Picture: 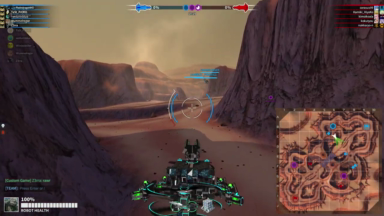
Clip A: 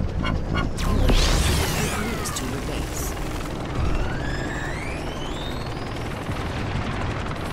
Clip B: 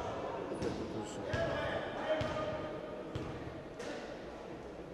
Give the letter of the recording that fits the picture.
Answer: A